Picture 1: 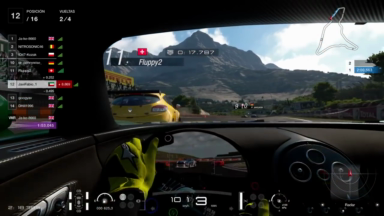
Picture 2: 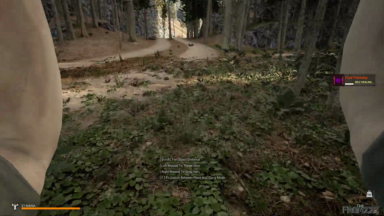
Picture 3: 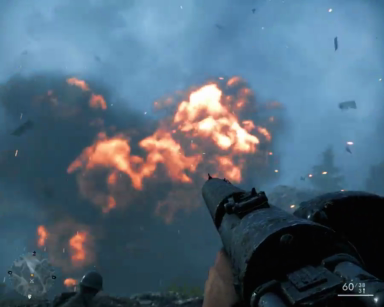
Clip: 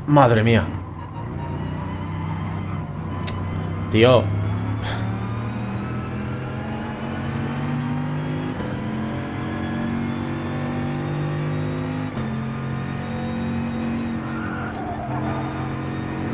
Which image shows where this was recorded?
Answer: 1